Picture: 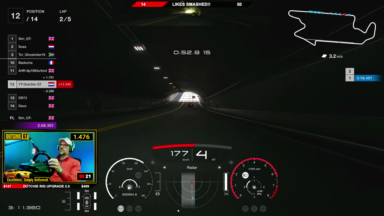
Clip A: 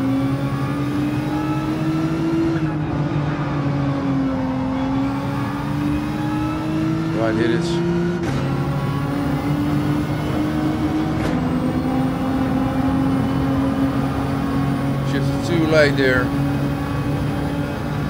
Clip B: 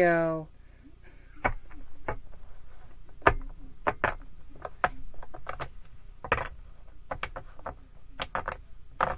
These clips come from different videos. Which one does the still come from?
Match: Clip A